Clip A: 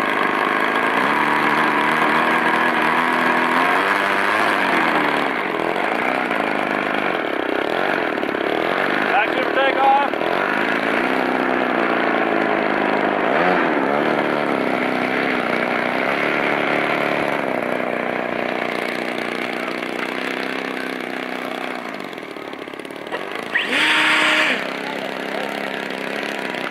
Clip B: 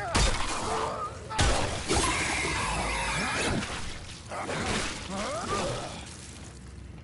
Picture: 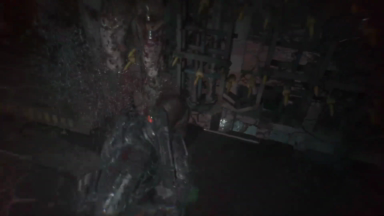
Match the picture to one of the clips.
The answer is B